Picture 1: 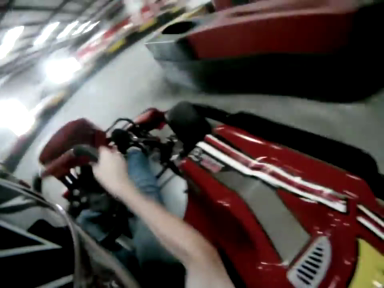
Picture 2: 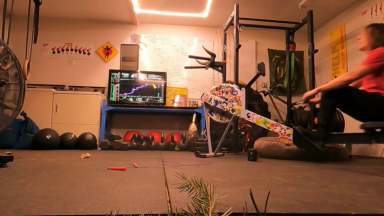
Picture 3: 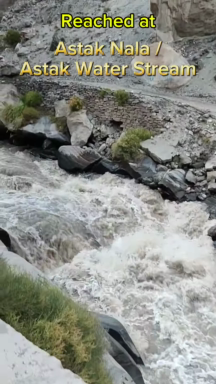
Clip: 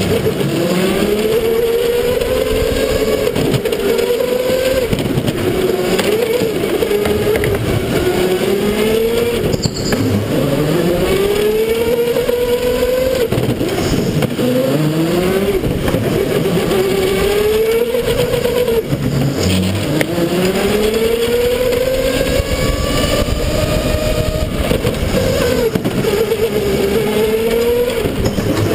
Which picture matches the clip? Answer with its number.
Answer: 1